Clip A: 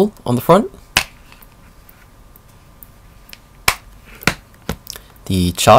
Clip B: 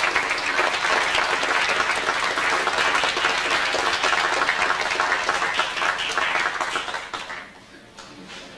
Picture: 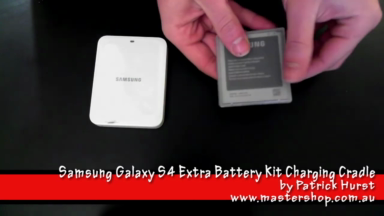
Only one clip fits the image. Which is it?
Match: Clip A